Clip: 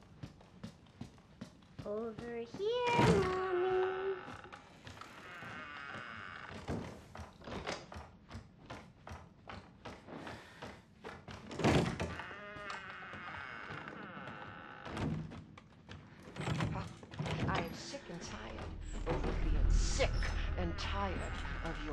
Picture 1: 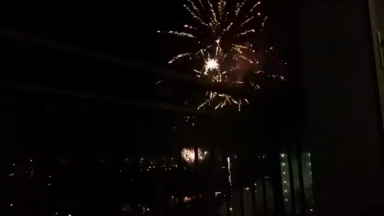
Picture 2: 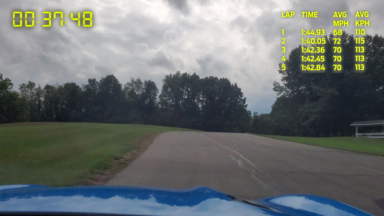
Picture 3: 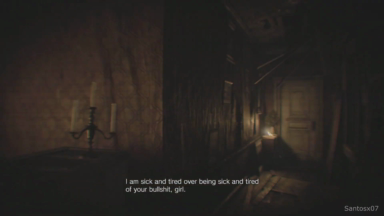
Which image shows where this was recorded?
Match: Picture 3